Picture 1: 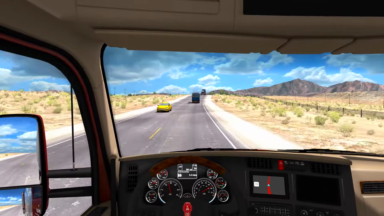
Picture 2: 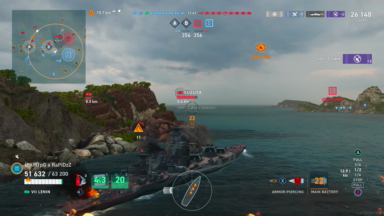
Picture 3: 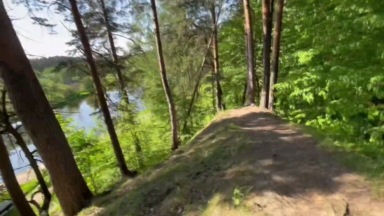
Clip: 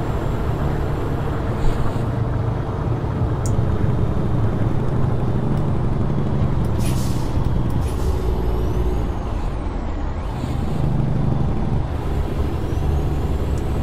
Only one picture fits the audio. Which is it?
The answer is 1